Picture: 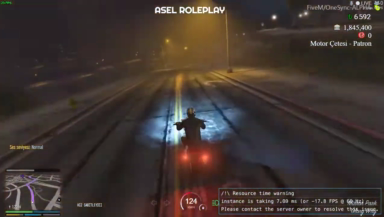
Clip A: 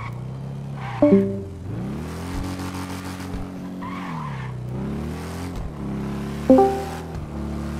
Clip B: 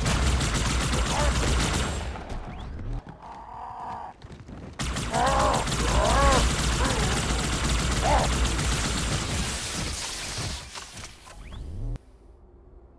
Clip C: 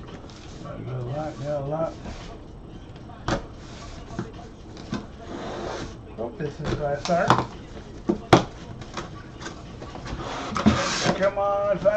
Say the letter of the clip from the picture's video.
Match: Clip A